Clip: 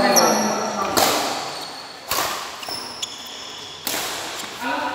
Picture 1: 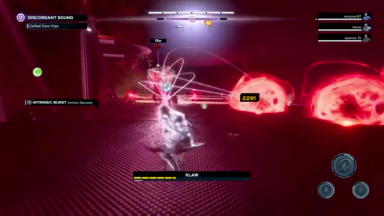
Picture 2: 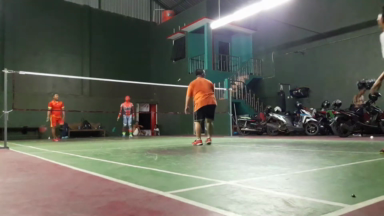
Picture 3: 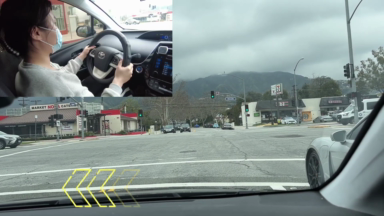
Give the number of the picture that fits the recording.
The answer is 2